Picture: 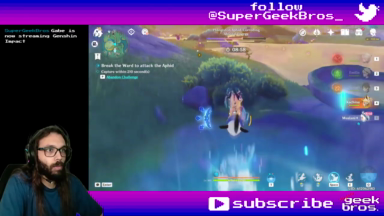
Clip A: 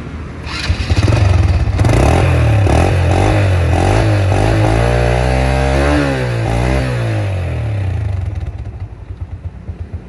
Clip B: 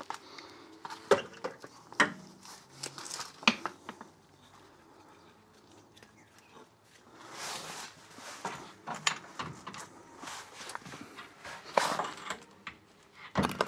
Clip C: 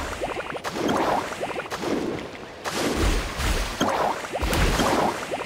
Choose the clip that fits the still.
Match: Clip C